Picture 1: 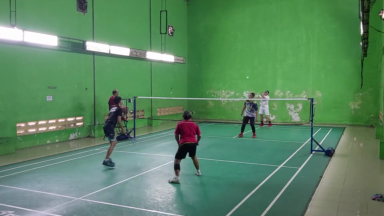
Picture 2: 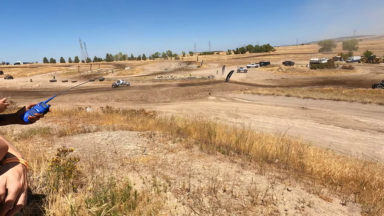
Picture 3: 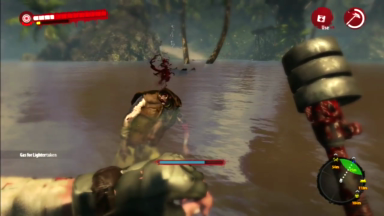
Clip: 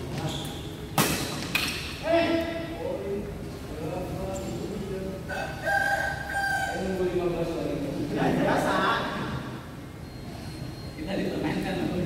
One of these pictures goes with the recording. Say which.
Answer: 1